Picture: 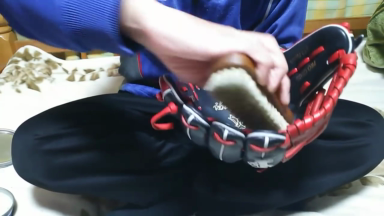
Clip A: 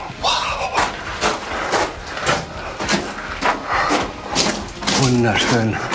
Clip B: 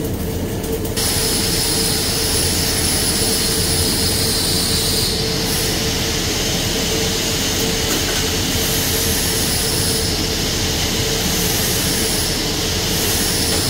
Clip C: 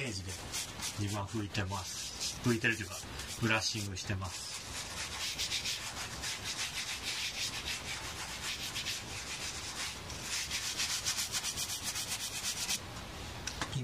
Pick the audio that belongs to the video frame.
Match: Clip C